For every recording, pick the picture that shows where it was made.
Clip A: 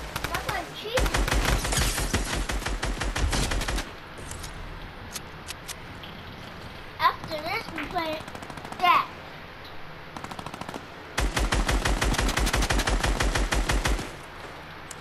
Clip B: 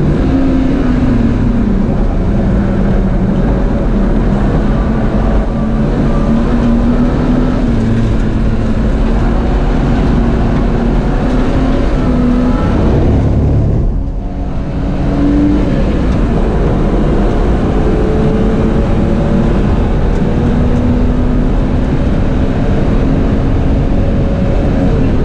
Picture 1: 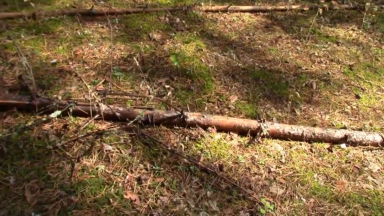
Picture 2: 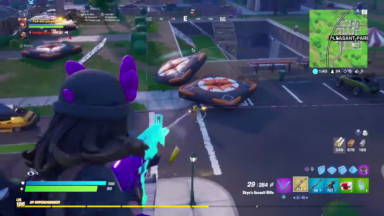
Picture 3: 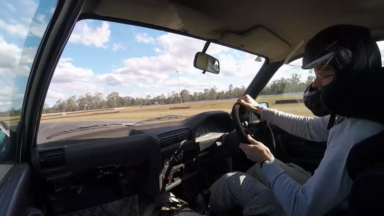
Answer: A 2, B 3